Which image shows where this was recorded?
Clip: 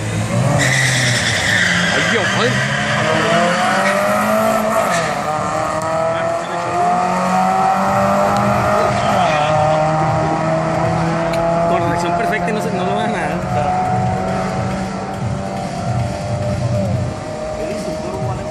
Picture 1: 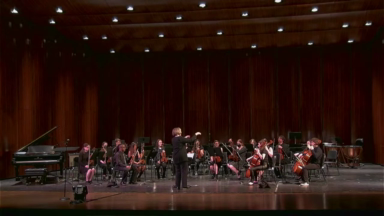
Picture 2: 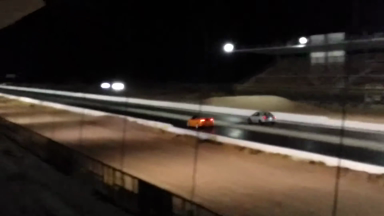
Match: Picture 2